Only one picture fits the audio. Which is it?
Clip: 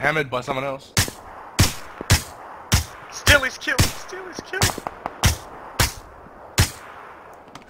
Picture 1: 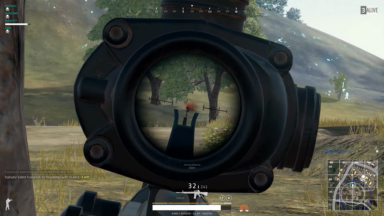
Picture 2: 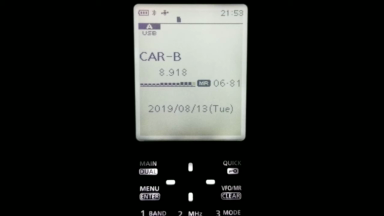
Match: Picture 1